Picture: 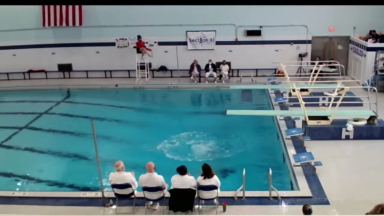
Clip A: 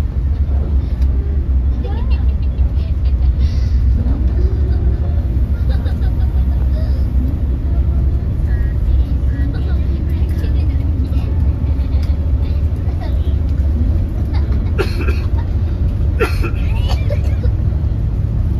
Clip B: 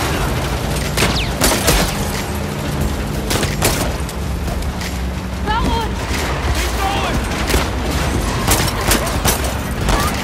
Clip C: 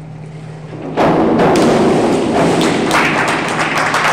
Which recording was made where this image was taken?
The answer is C